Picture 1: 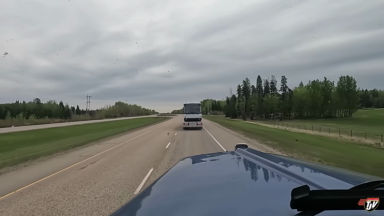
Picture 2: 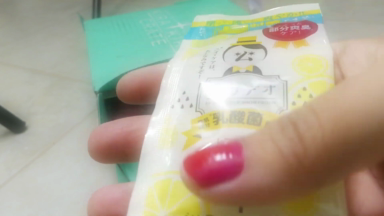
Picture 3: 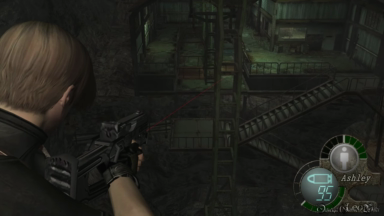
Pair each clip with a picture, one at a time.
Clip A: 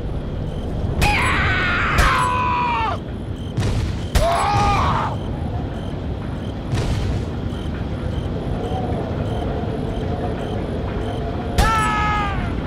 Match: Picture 3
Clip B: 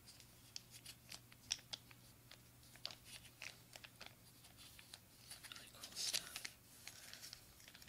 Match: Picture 2